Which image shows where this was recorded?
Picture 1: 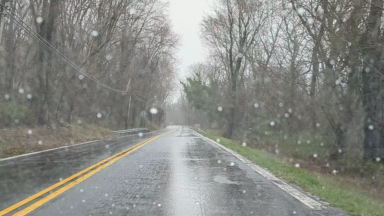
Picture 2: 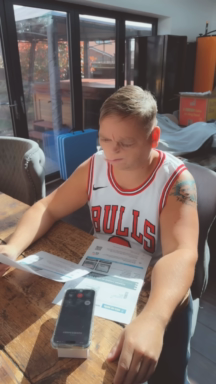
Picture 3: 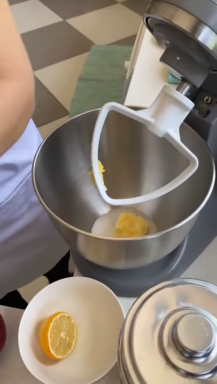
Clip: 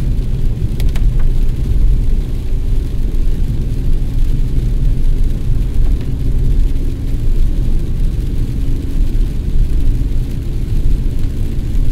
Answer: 1